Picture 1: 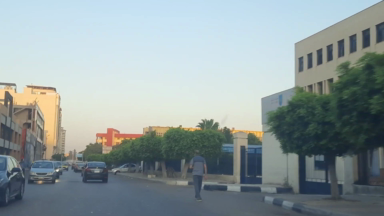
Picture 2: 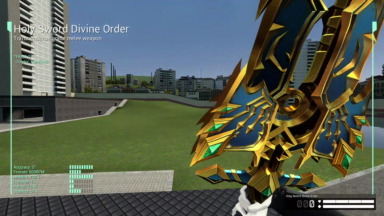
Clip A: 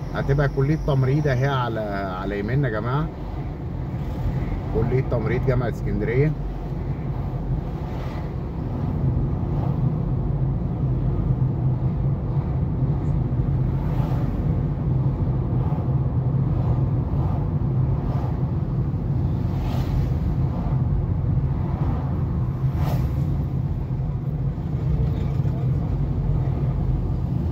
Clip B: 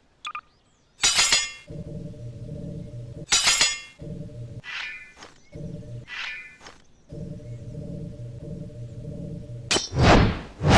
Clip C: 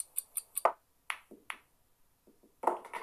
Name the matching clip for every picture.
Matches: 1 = A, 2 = B